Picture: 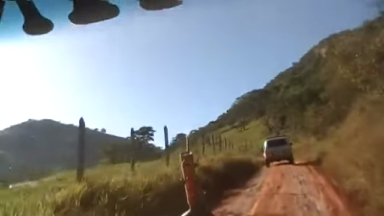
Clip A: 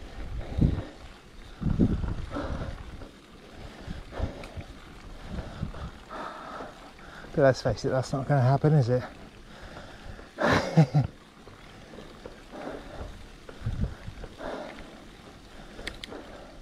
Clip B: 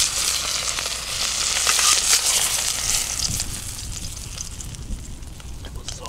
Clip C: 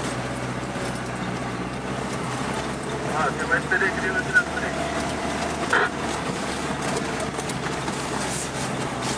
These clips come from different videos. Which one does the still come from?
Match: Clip C